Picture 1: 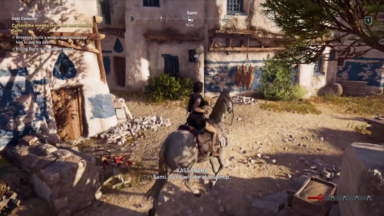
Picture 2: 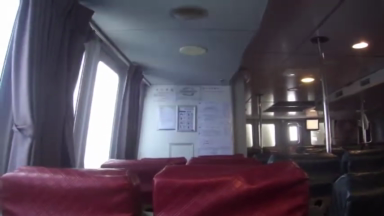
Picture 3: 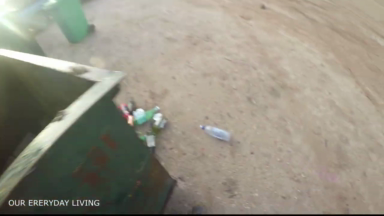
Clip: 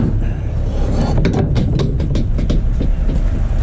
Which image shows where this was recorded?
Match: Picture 3